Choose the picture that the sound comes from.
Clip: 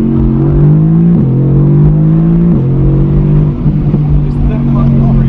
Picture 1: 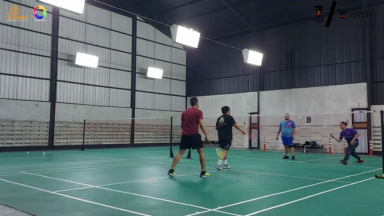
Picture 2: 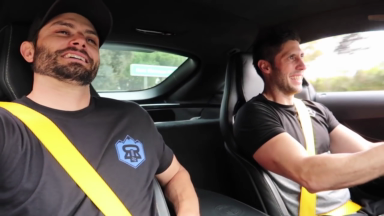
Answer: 2